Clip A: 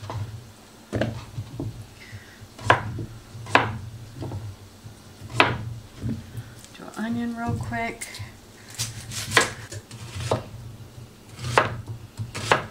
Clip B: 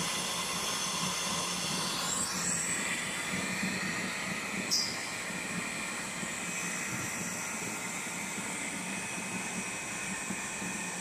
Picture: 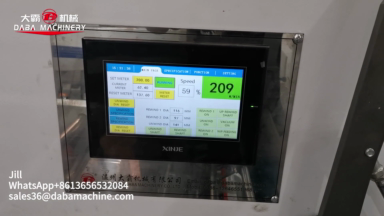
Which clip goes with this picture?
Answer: B